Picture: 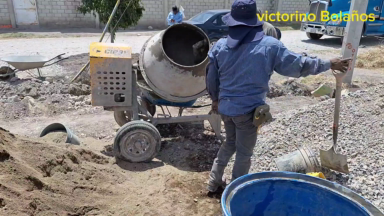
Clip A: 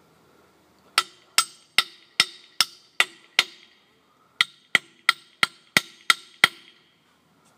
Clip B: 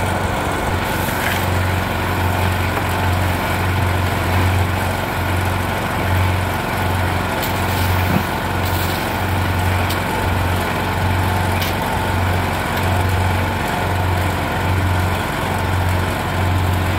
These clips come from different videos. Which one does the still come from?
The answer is B